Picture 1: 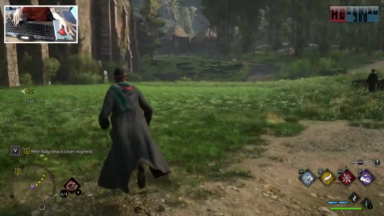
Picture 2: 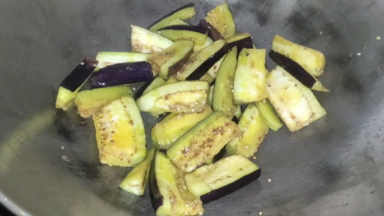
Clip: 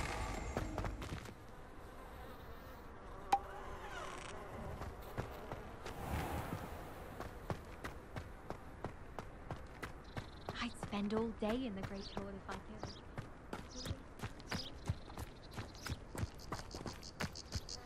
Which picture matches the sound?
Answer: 1